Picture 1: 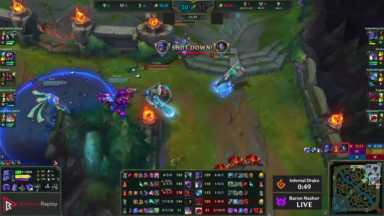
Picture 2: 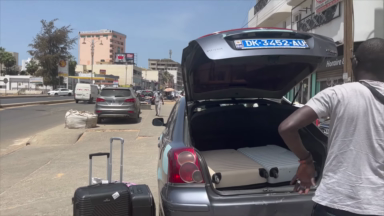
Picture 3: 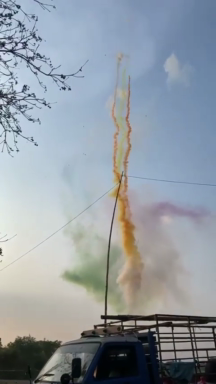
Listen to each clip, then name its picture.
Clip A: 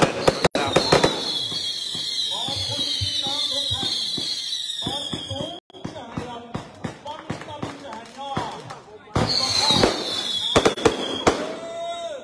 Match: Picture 3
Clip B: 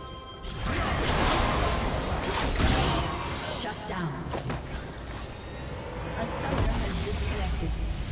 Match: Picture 1